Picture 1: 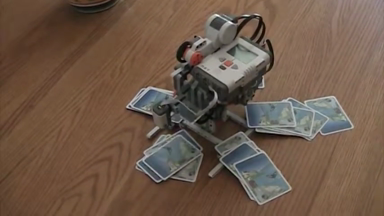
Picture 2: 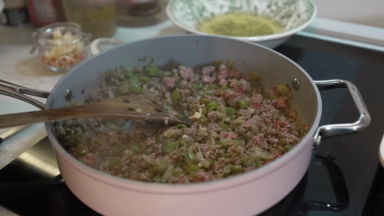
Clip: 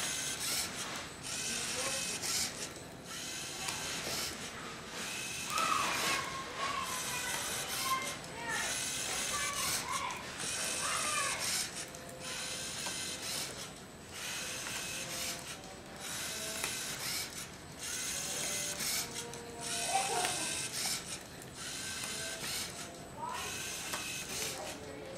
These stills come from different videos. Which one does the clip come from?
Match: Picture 1